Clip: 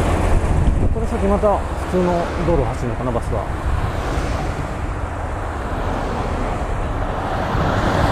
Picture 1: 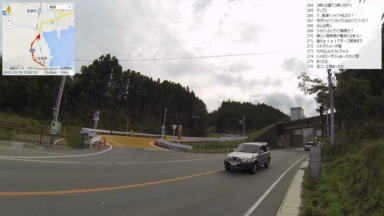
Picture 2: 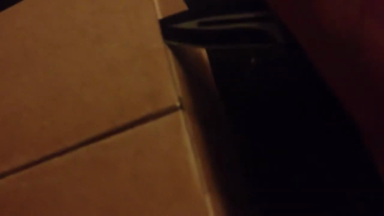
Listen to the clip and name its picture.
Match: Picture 1